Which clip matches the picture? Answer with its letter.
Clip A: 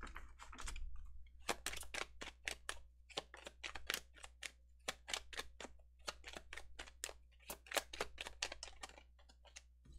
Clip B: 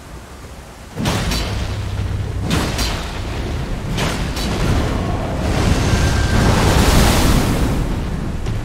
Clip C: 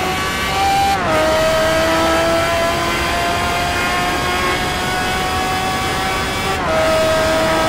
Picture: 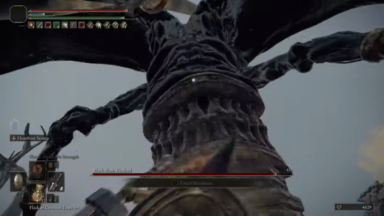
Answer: B